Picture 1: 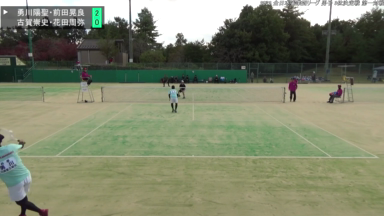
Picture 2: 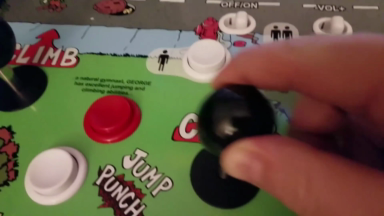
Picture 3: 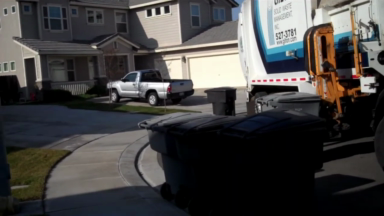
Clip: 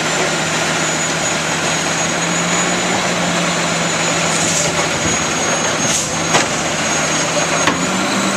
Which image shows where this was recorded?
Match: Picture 3